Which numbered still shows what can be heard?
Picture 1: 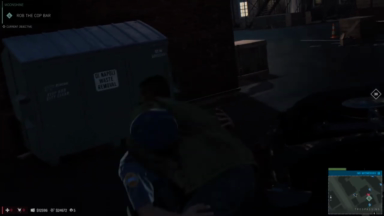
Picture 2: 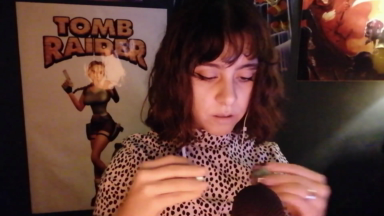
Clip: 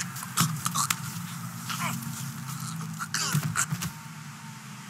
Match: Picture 1